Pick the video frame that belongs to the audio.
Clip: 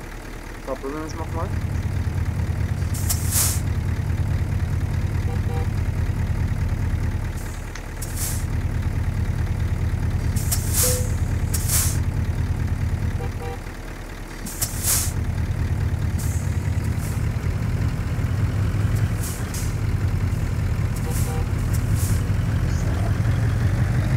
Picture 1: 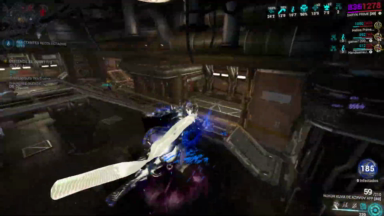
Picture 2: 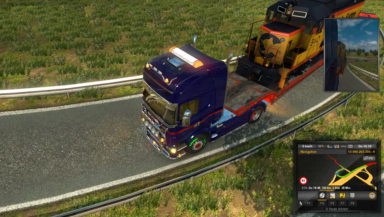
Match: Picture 2